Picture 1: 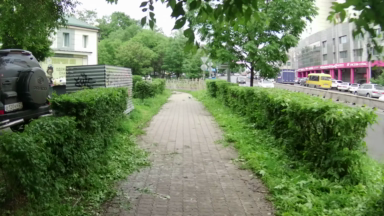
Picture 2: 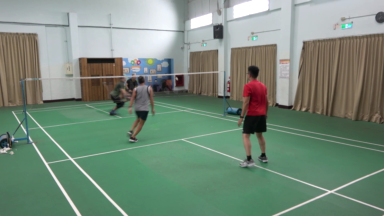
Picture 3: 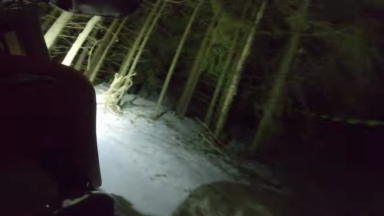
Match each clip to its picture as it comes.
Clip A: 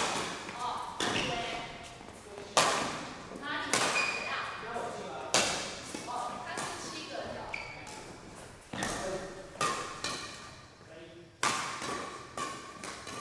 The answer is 2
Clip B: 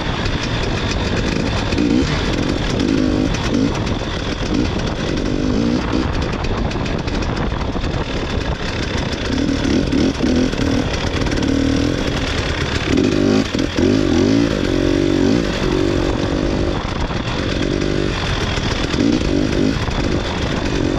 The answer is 3